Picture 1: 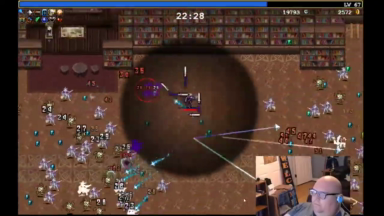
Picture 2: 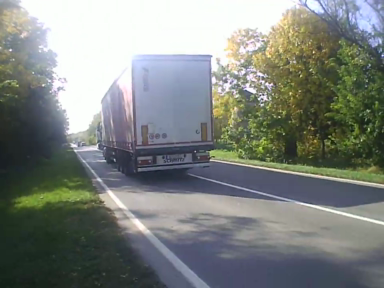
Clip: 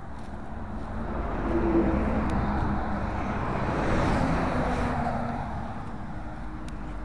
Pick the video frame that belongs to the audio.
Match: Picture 2